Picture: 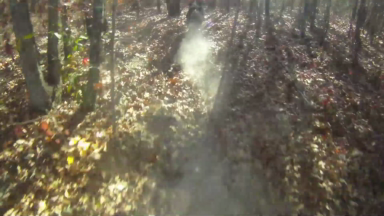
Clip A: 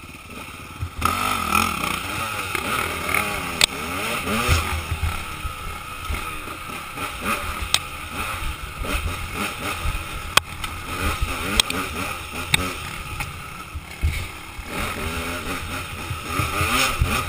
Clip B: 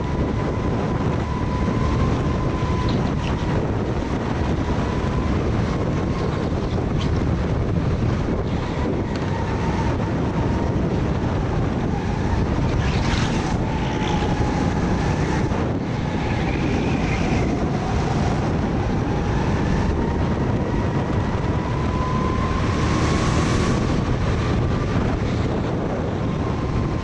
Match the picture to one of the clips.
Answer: A